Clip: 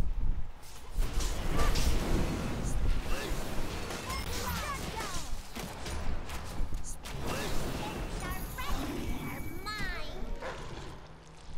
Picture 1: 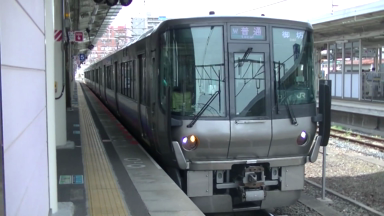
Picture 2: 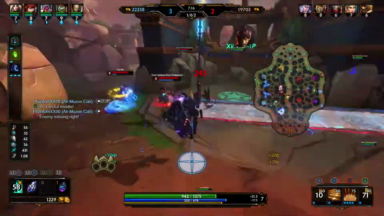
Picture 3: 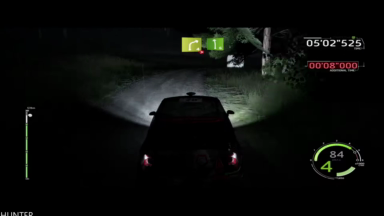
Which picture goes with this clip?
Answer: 2